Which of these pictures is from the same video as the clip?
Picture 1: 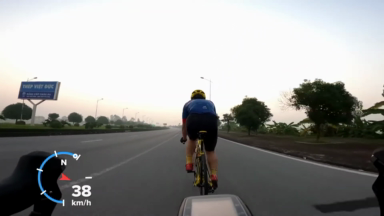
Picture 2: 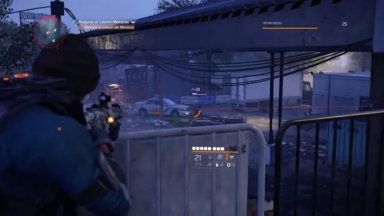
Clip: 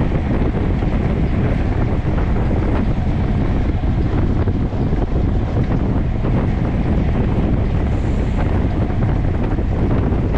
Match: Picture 1